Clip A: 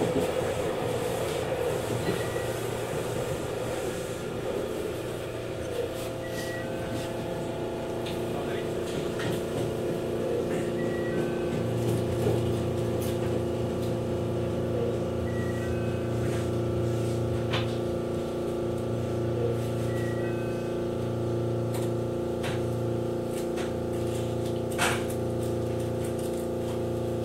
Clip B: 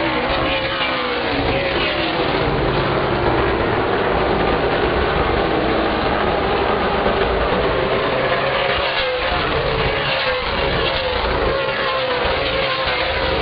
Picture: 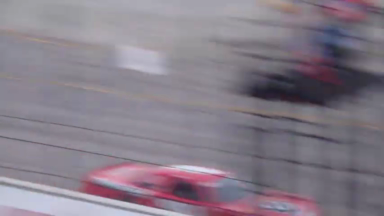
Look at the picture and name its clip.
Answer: B